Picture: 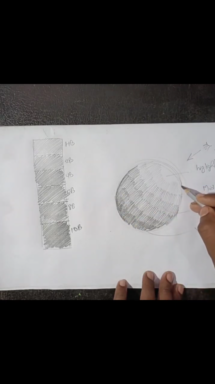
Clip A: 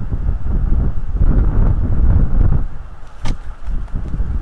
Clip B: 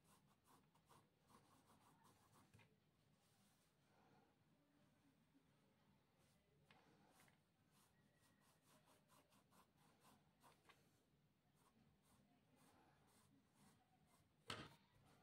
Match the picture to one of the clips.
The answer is B